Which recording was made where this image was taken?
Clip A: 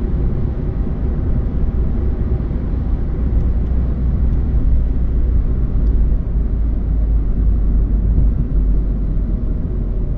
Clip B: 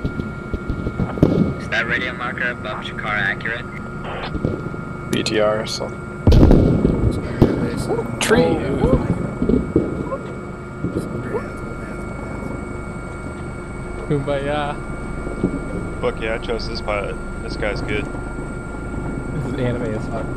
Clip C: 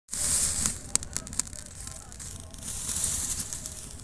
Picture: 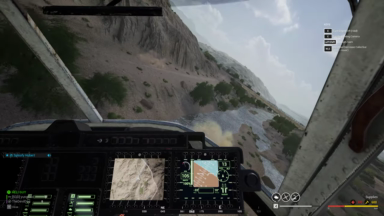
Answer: B